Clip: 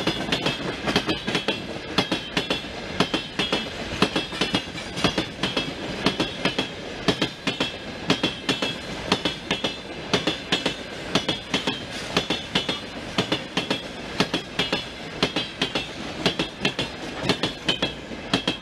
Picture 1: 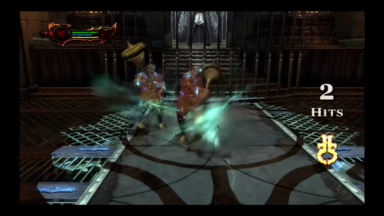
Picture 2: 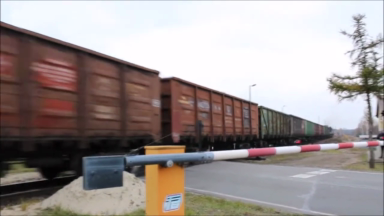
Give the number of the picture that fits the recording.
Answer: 2